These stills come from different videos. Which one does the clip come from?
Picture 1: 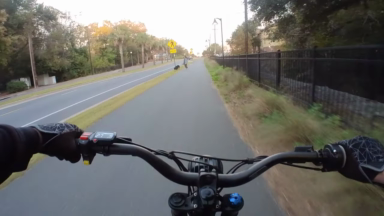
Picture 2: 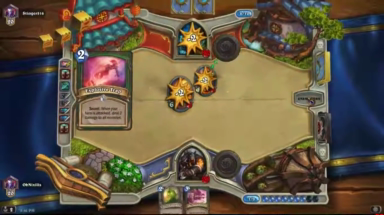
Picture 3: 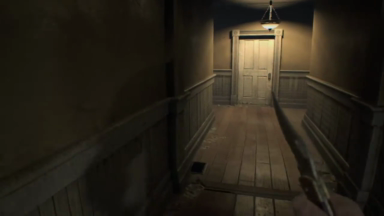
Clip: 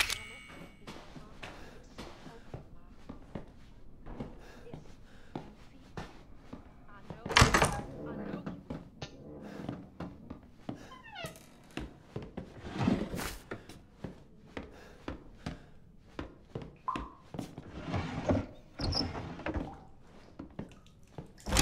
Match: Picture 3